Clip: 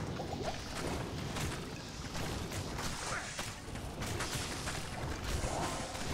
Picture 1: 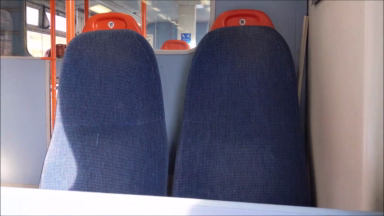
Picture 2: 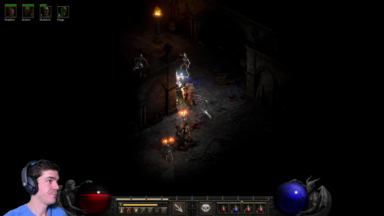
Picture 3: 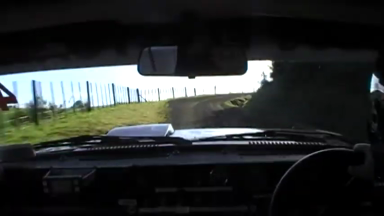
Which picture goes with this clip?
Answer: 2